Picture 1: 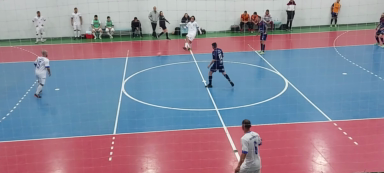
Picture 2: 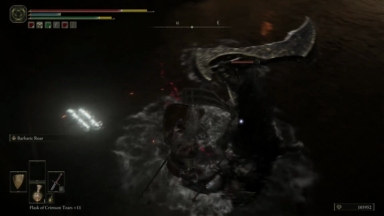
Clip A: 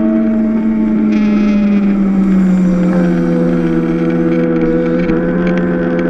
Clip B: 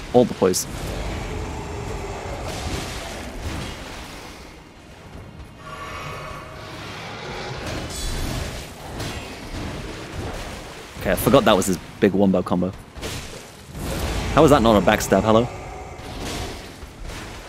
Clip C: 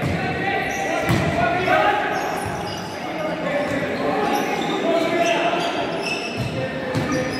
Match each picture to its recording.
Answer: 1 C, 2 B